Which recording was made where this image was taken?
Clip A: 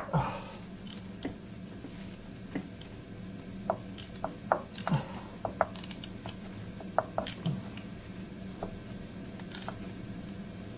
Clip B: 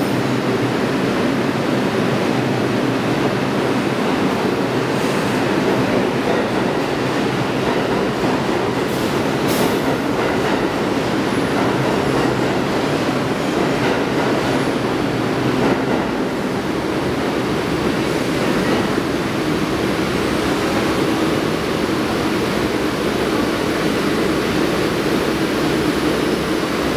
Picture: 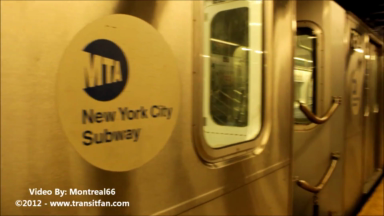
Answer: B